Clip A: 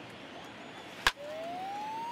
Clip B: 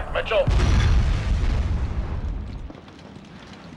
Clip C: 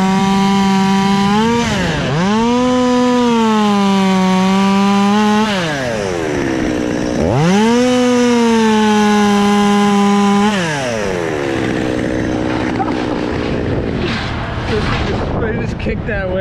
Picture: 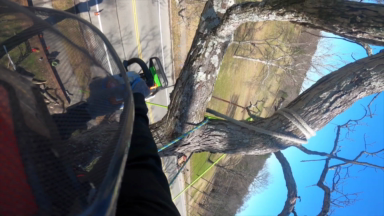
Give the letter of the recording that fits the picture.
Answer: C